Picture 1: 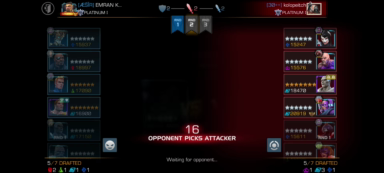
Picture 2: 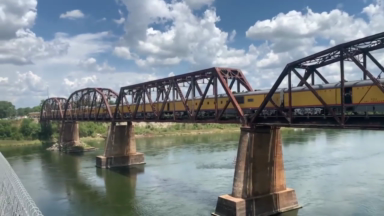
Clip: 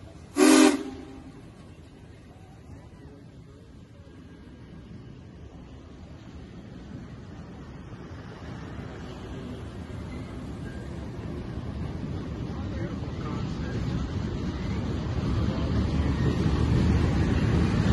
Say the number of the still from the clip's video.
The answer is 2